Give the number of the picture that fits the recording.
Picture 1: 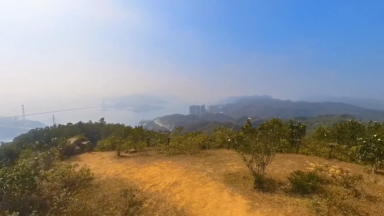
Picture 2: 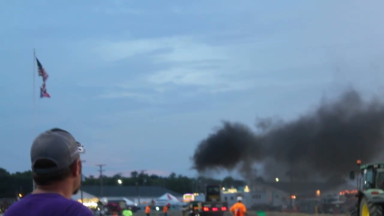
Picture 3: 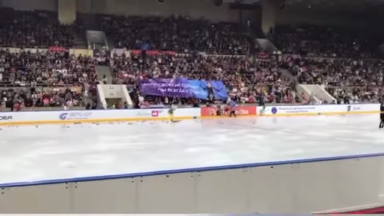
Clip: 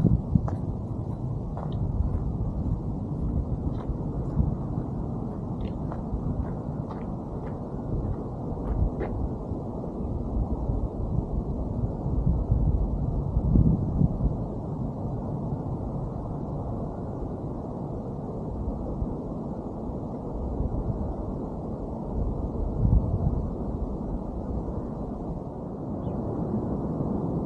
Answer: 1